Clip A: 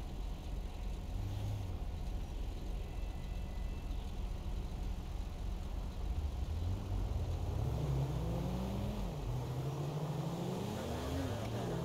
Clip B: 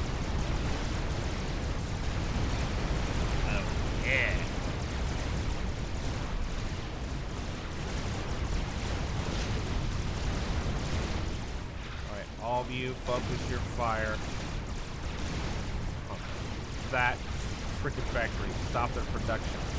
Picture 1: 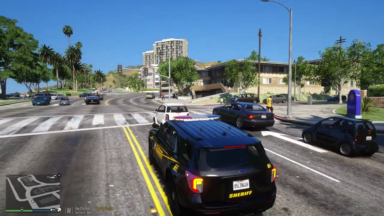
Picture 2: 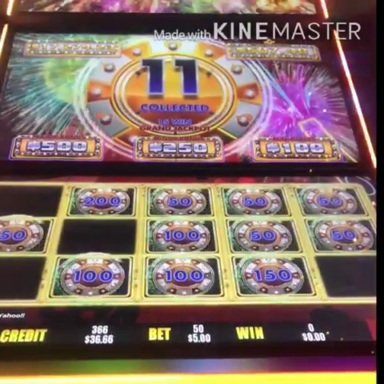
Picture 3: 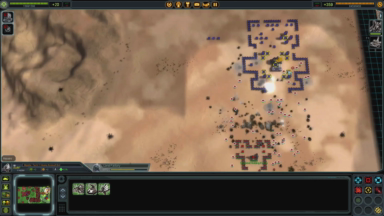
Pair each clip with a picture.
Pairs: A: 1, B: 3